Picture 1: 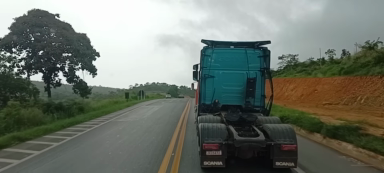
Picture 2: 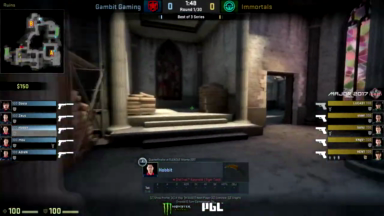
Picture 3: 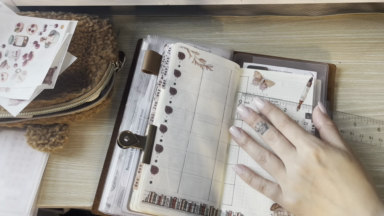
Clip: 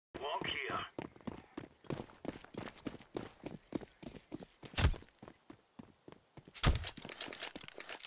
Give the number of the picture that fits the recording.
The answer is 2